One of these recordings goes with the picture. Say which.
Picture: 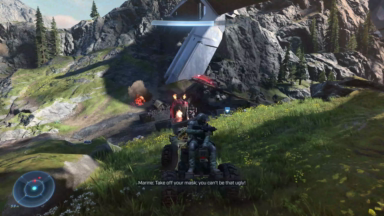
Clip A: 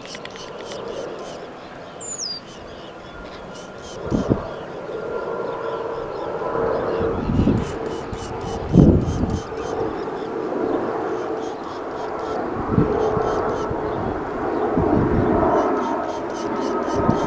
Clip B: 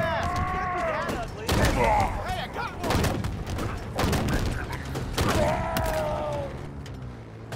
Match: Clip B